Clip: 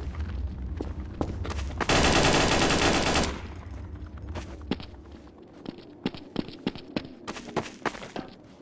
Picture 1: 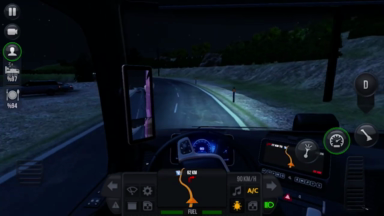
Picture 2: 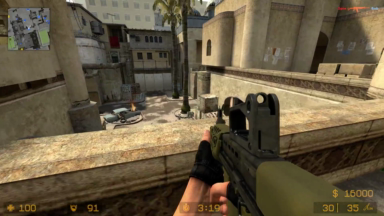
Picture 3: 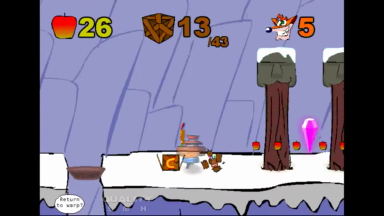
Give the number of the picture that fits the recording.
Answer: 2